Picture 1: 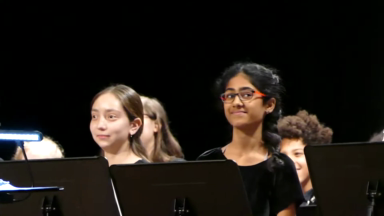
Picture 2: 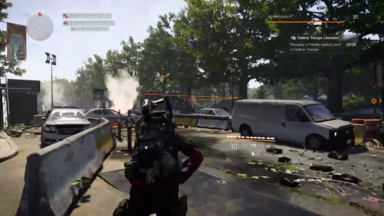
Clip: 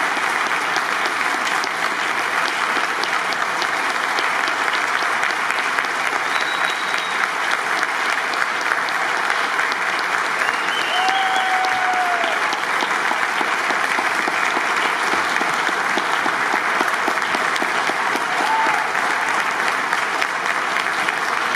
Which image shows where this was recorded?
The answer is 1